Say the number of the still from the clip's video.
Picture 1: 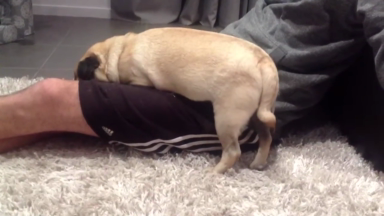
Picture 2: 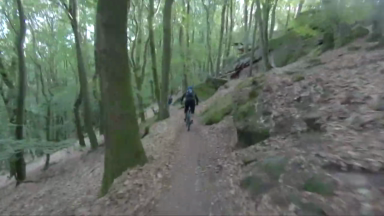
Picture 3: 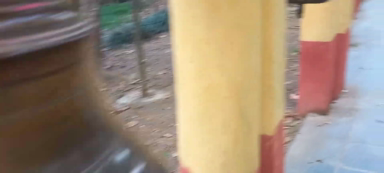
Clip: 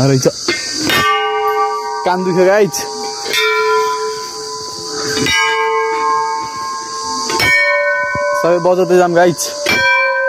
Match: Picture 3